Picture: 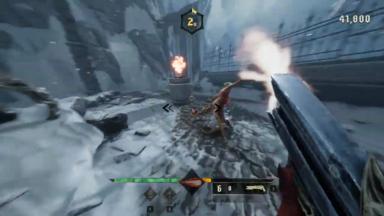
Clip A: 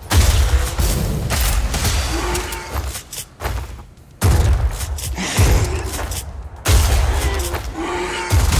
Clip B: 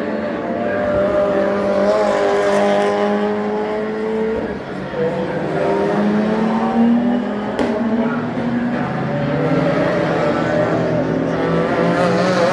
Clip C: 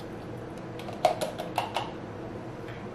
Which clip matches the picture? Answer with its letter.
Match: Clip A